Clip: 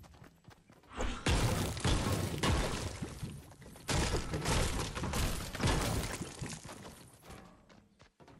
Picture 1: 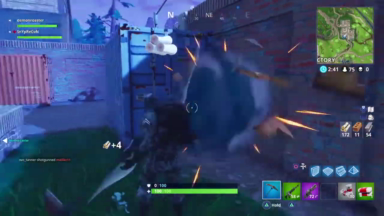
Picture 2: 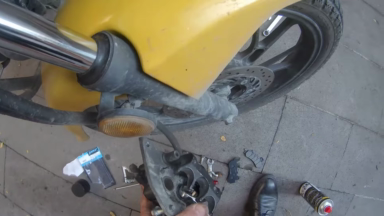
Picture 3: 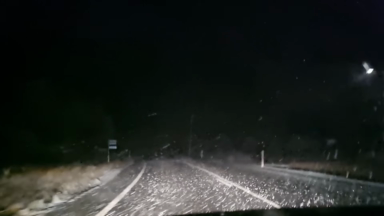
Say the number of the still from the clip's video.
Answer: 1